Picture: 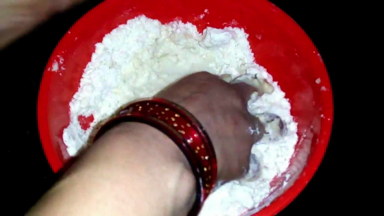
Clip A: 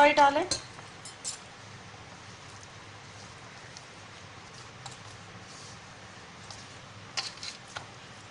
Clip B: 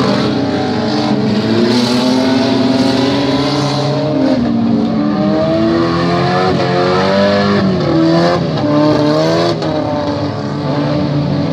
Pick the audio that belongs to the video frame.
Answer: A